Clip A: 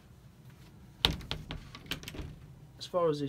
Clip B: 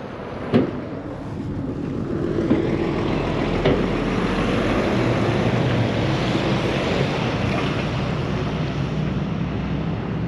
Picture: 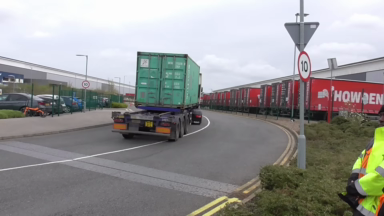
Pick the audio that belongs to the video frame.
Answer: B